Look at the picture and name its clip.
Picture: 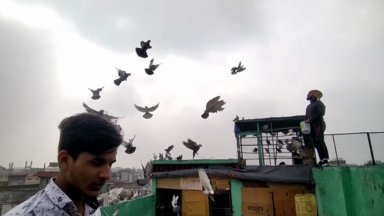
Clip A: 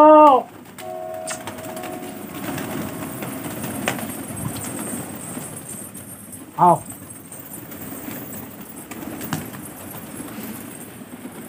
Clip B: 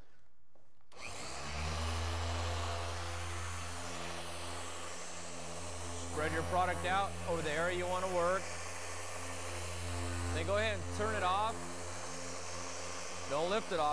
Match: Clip A